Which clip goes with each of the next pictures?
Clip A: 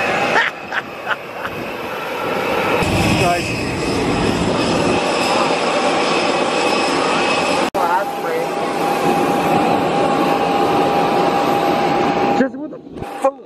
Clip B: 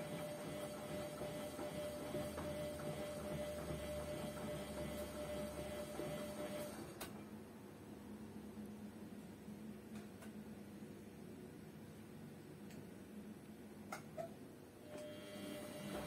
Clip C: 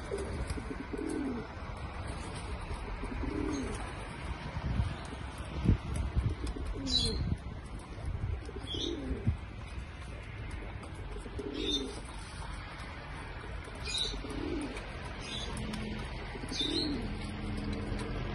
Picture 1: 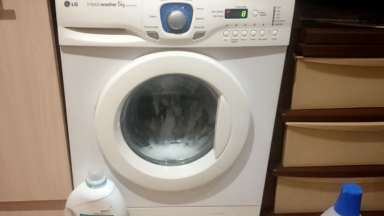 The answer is B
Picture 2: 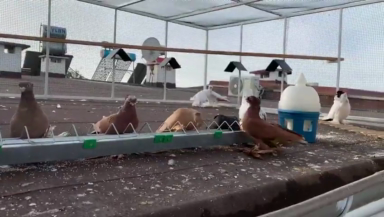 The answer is C